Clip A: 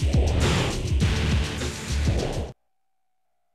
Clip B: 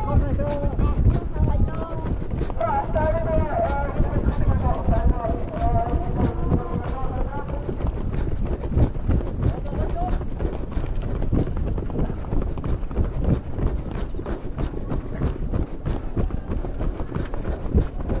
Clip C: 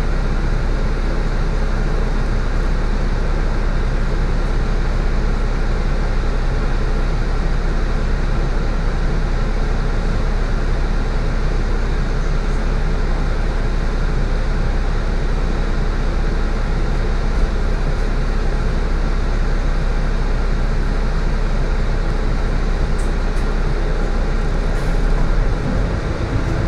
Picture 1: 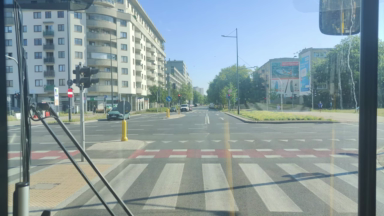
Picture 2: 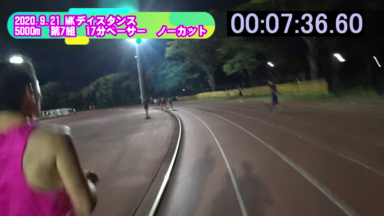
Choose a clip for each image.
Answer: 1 C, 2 B